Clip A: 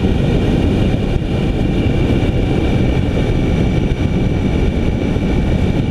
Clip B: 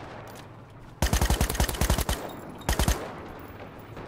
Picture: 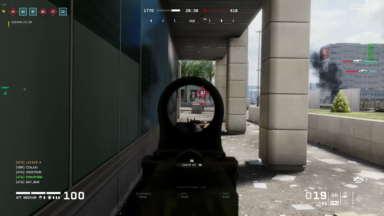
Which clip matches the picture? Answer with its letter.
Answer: B